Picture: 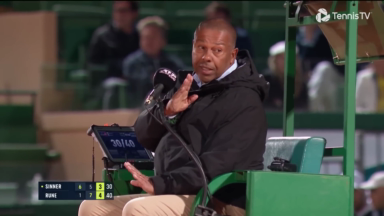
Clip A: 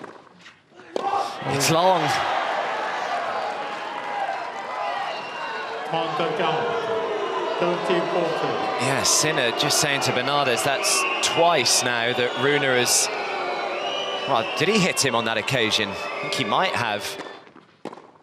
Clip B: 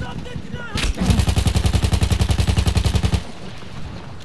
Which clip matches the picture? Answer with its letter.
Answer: A